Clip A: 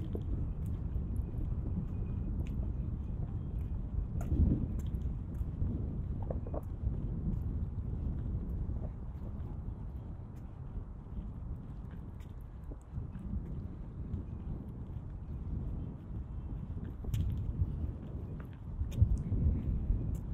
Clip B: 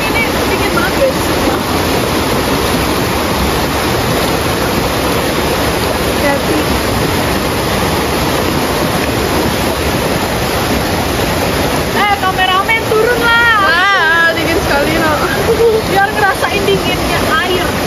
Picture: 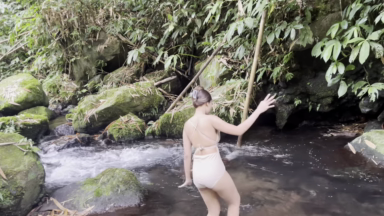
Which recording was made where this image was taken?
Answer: B